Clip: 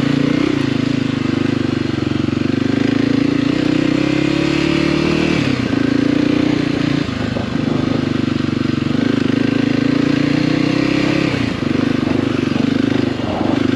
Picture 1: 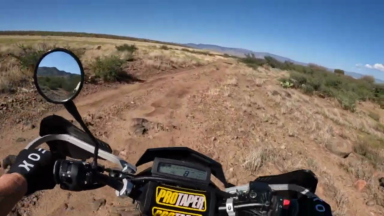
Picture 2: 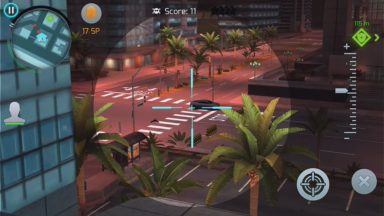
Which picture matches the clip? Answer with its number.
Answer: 1